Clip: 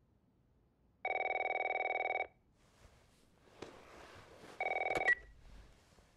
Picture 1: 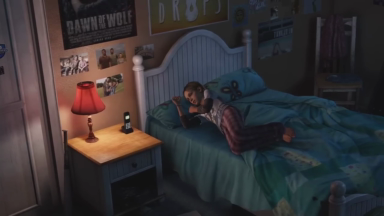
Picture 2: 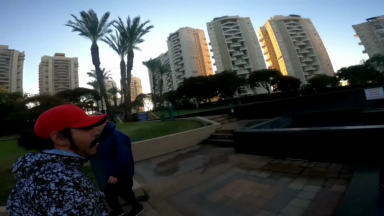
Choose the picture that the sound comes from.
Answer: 1